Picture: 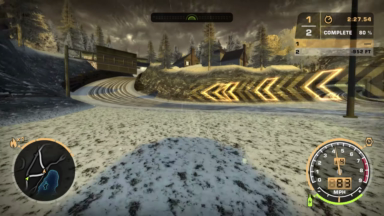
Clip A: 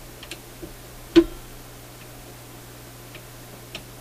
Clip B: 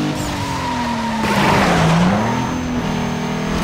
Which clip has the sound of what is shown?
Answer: B